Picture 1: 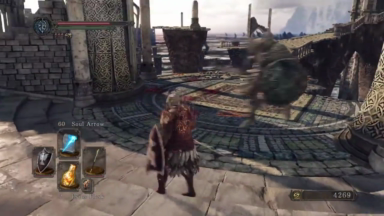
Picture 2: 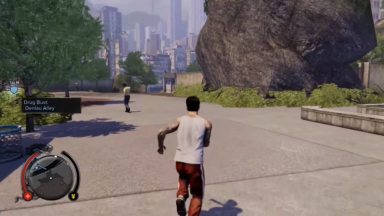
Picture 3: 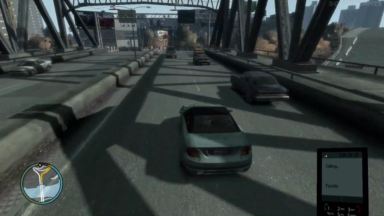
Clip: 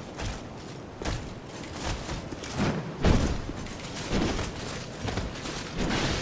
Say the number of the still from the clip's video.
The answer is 1